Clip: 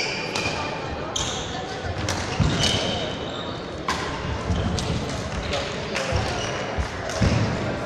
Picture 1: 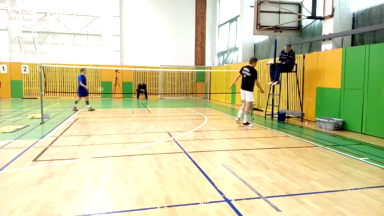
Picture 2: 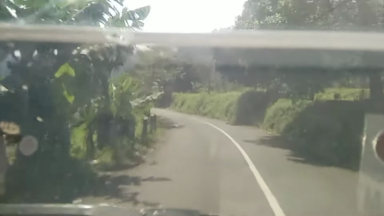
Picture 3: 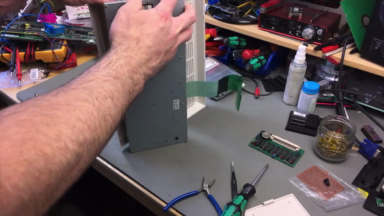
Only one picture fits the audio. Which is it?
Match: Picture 1